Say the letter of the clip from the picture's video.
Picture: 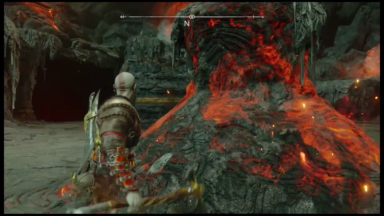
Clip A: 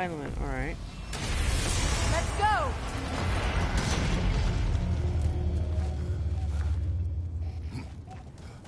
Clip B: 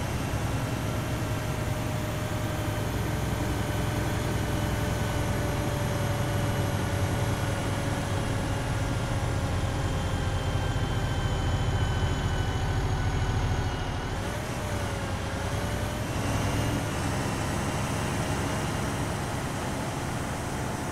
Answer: A